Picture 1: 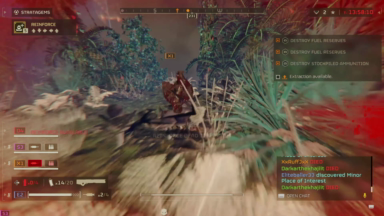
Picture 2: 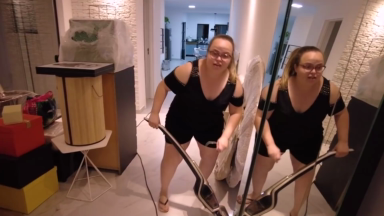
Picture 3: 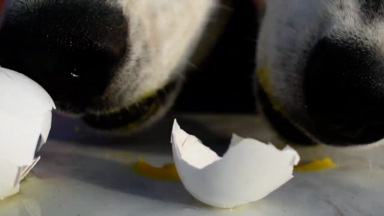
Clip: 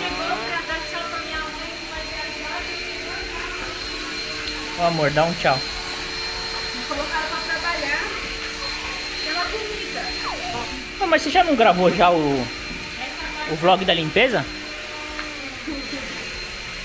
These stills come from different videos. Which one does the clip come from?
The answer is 2